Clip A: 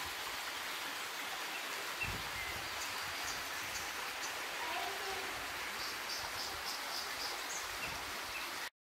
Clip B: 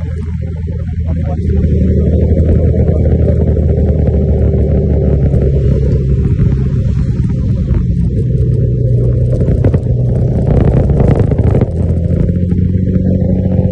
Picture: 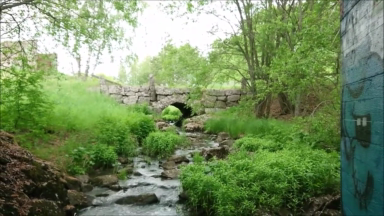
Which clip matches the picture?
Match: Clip A